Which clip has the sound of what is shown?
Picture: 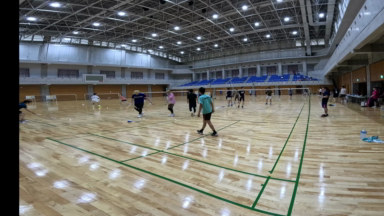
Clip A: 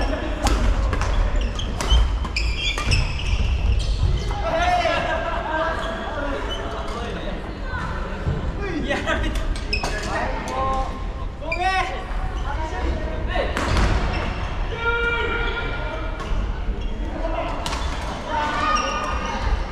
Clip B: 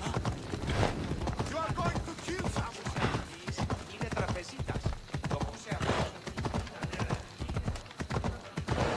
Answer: A